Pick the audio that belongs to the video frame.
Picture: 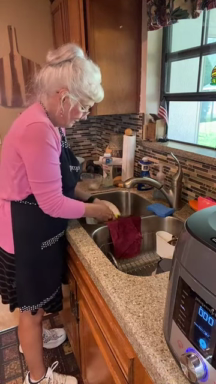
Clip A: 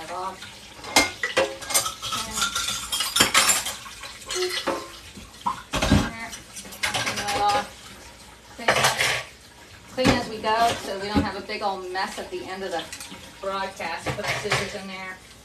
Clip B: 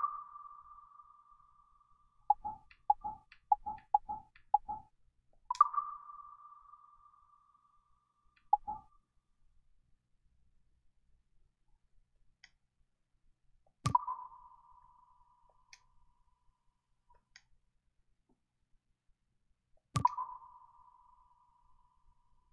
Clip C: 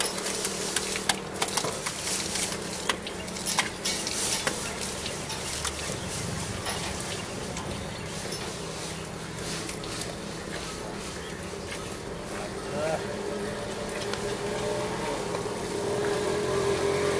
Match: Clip A